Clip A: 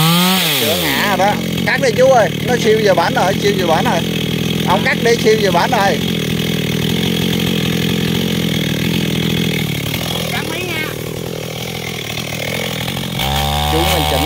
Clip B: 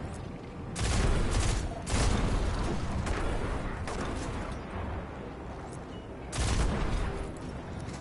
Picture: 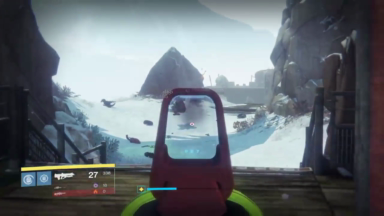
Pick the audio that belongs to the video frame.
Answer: B